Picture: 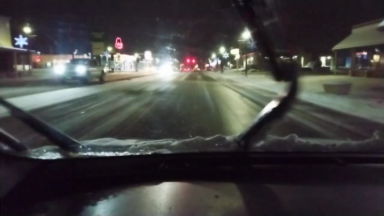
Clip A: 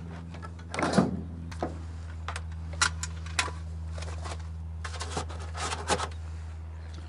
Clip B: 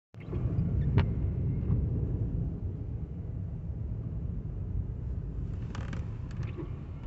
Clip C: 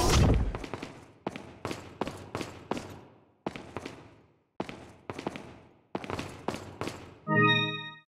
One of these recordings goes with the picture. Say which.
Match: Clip B